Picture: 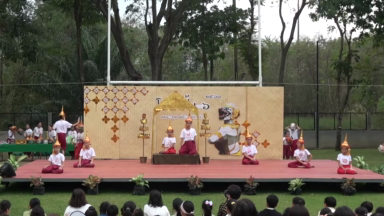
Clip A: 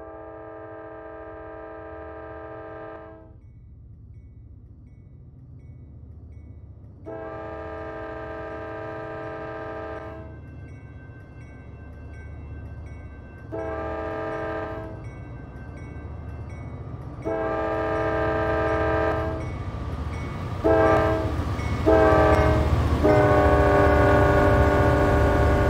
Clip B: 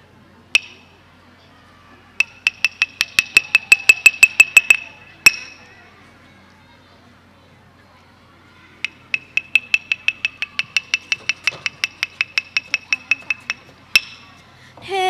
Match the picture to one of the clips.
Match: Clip B